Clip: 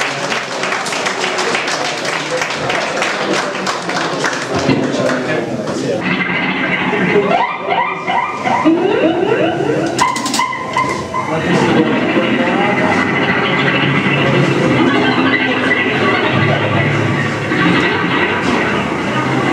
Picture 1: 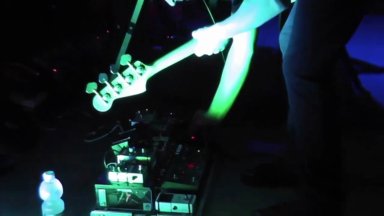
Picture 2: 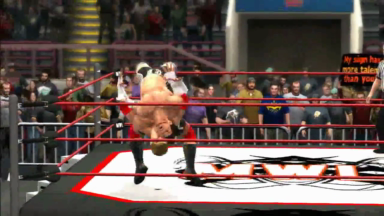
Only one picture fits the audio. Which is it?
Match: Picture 1